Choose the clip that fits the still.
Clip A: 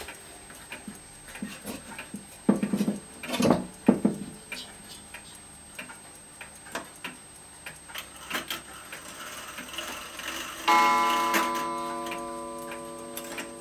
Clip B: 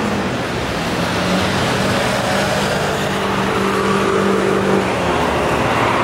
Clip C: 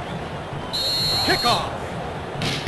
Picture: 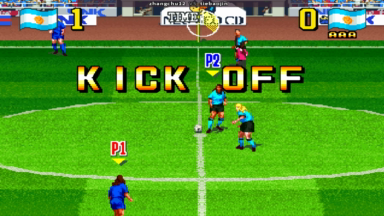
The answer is C